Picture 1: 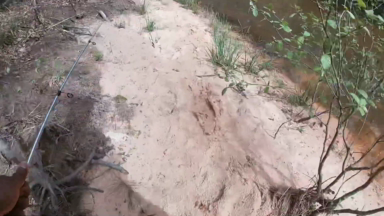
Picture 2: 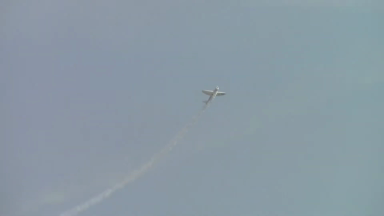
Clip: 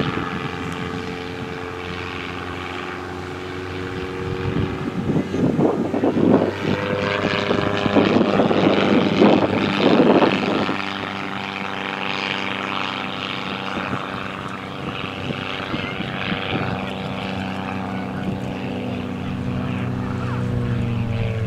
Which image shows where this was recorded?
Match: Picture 2